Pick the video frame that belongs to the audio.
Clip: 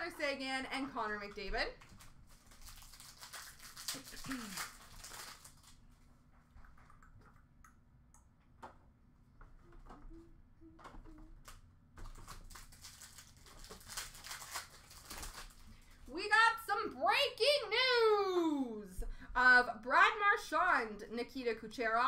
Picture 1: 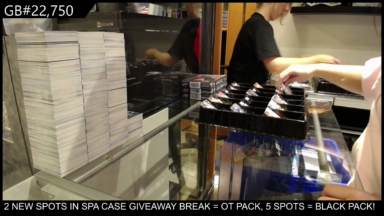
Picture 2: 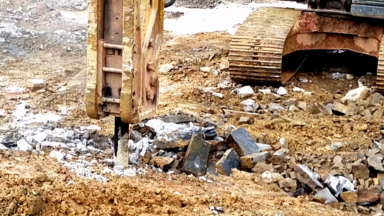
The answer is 1